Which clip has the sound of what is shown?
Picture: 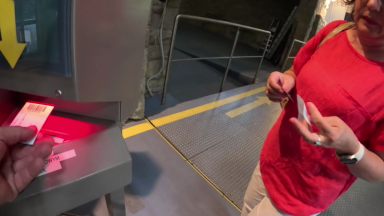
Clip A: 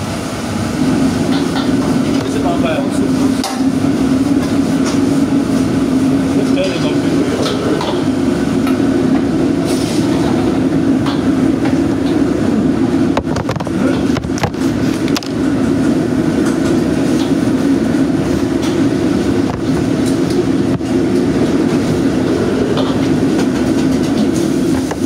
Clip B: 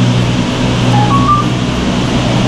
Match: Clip B